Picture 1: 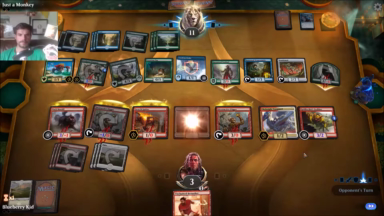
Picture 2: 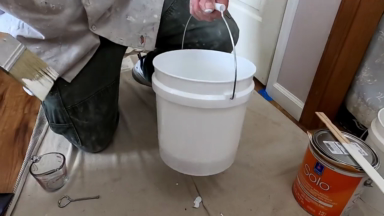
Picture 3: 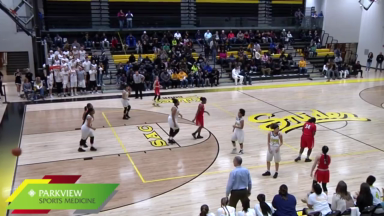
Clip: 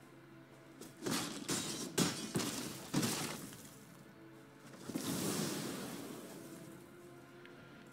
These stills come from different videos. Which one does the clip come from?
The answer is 1